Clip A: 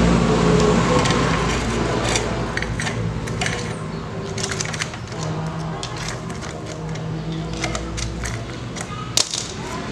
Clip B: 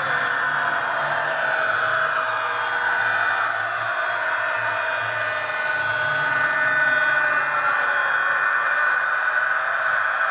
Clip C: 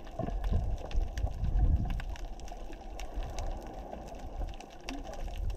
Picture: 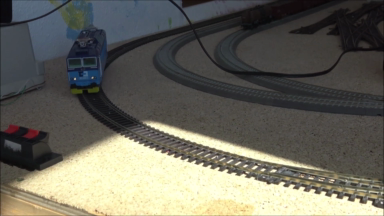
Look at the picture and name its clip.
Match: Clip B